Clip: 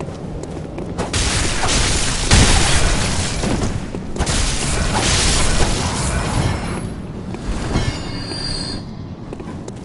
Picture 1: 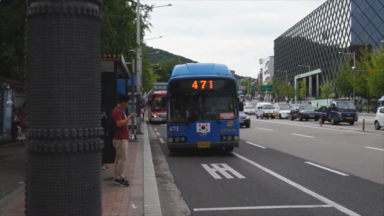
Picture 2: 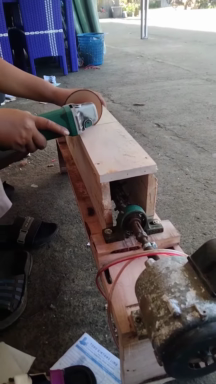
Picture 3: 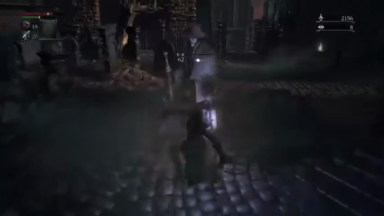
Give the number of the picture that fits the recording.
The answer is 3